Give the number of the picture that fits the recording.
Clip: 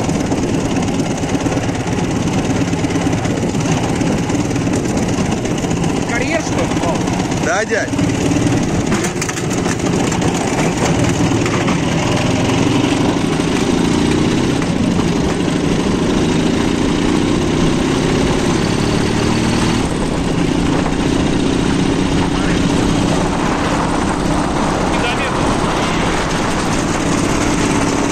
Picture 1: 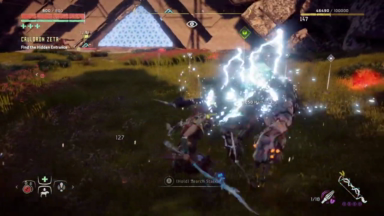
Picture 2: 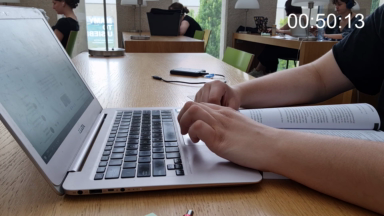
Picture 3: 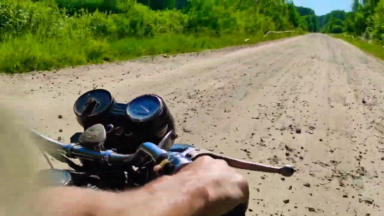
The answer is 3